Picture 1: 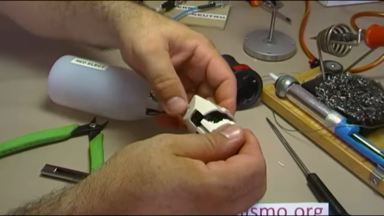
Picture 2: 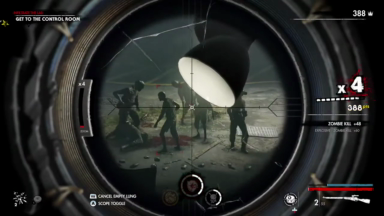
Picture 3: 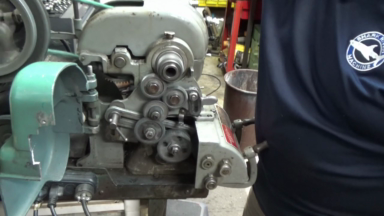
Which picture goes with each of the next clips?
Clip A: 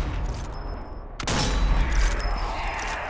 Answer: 2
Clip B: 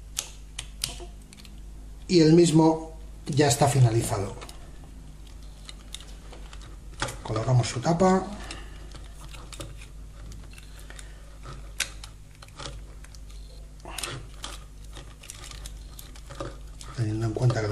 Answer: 1